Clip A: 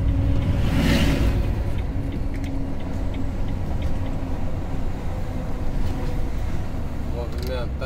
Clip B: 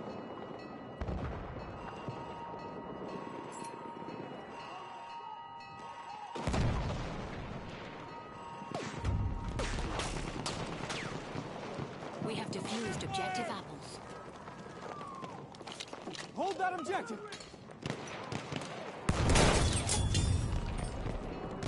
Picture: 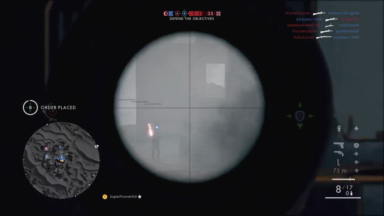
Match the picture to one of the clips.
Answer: B